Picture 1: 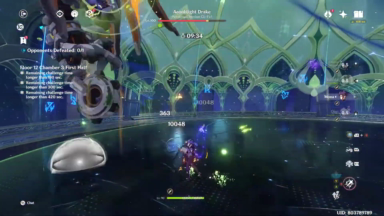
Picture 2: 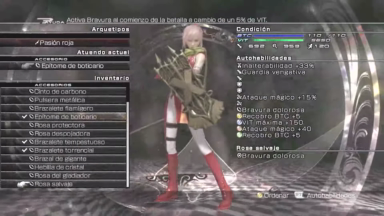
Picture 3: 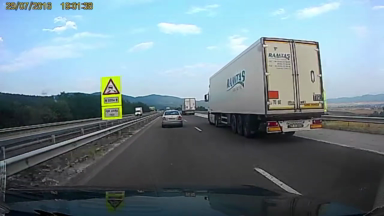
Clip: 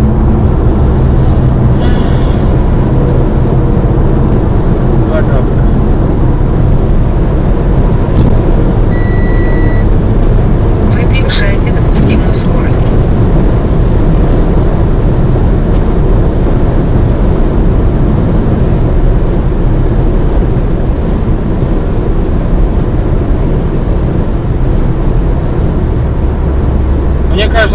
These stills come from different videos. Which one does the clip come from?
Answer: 3